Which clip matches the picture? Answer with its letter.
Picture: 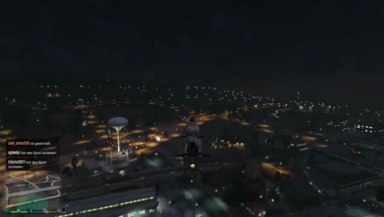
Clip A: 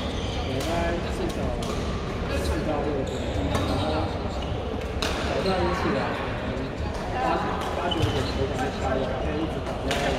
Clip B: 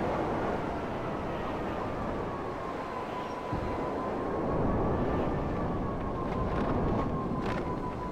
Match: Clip B